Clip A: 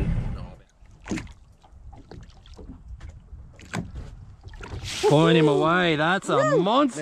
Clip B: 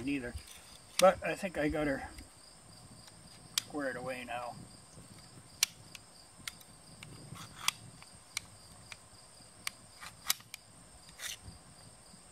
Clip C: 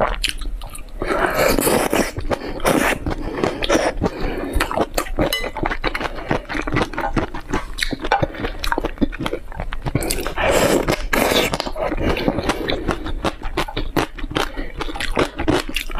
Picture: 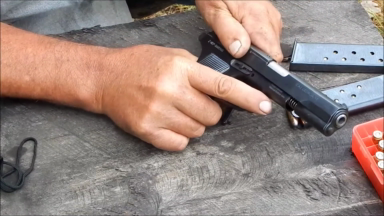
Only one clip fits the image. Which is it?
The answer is B